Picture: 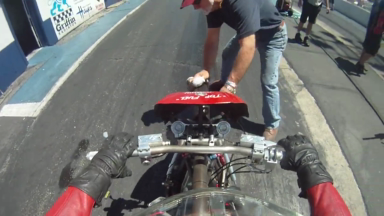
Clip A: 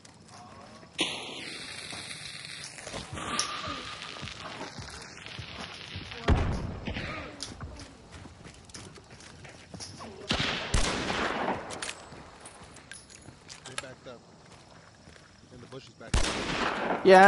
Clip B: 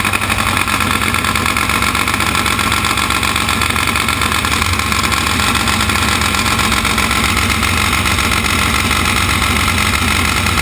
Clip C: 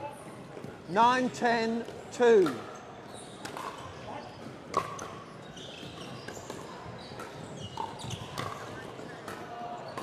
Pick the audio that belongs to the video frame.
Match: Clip B